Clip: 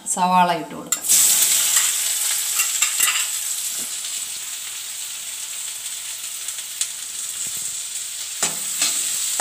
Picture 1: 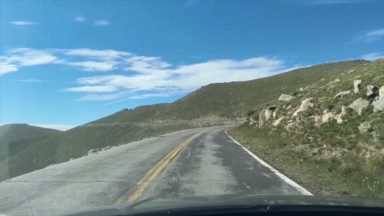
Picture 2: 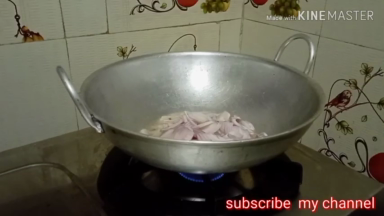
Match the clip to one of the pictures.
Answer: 2